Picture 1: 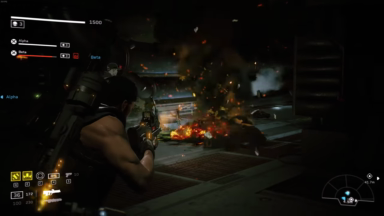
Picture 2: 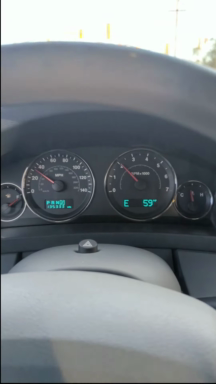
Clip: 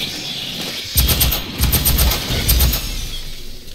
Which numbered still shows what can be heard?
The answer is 1